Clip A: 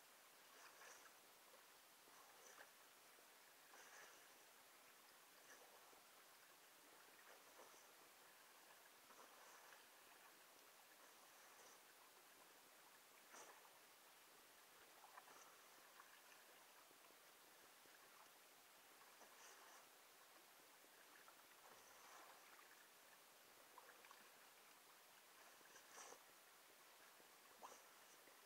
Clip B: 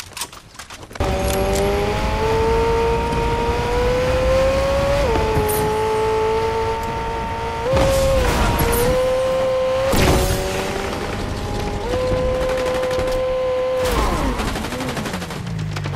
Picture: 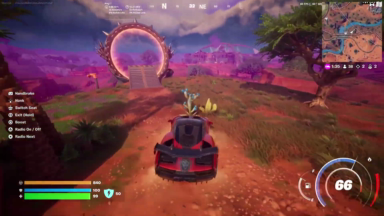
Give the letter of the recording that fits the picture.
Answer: B